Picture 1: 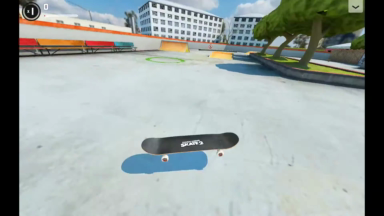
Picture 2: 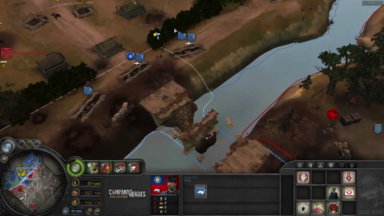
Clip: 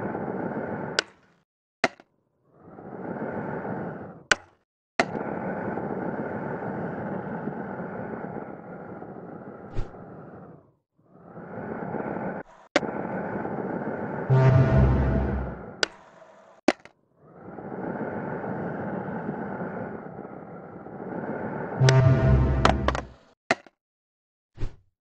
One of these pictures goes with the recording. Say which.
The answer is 1